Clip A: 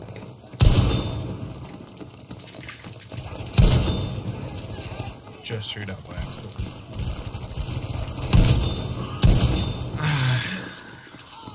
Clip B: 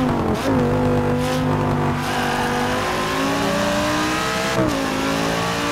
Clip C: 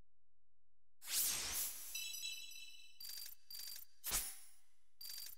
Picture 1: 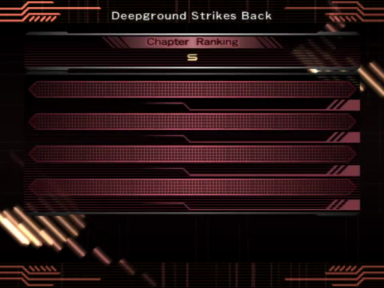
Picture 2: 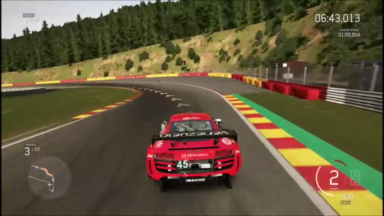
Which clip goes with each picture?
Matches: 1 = C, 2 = B